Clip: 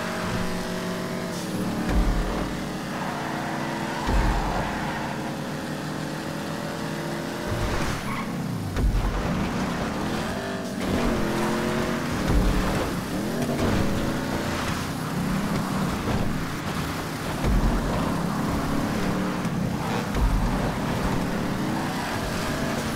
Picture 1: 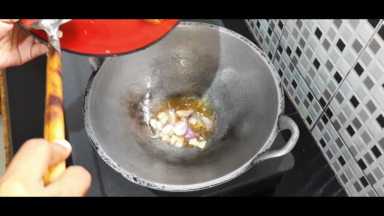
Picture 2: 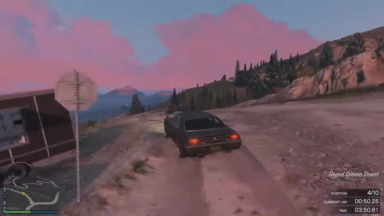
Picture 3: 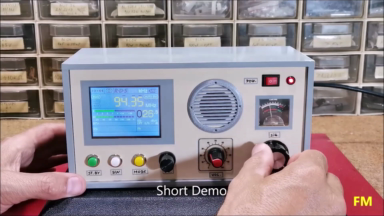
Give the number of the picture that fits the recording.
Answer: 2